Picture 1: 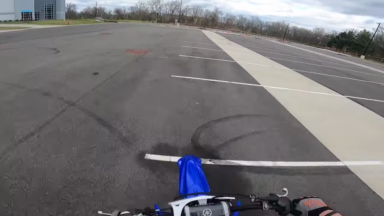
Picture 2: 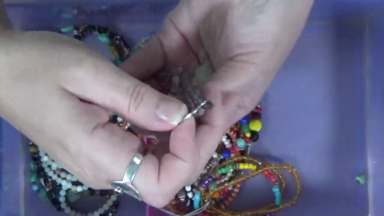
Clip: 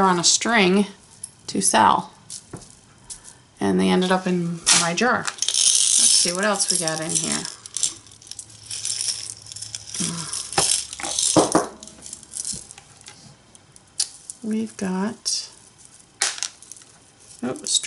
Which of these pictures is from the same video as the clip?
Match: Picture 2